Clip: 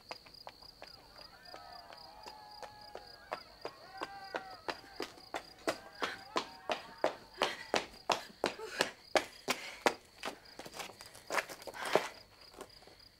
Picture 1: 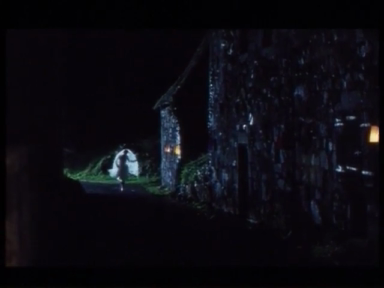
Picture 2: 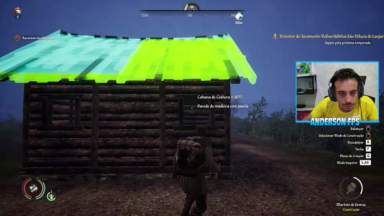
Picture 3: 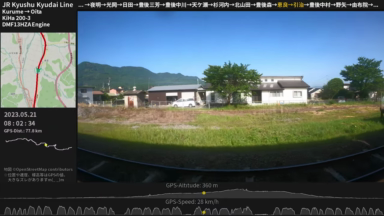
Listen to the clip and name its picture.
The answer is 1